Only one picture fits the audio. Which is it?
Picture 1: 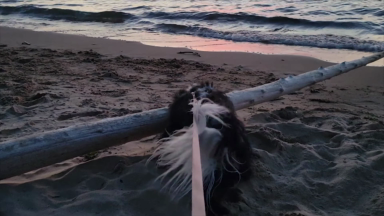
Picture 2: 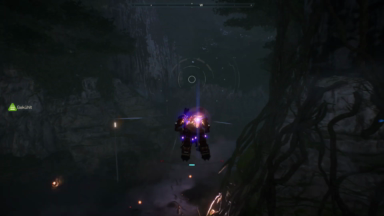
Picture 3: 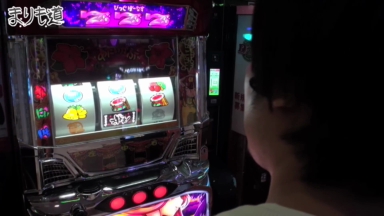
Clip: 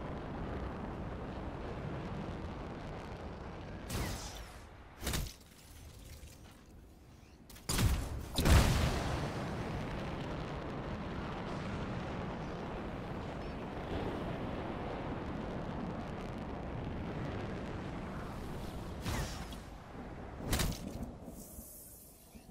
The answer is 2